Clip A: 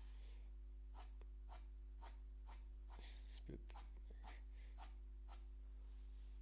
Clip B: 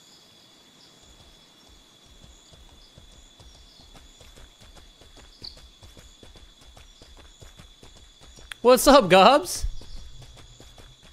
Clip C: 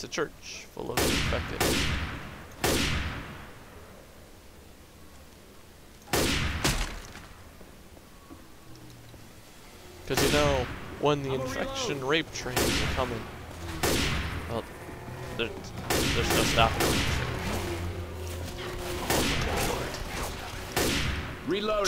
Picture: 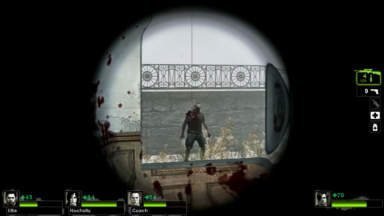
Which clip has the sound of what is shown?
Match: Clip C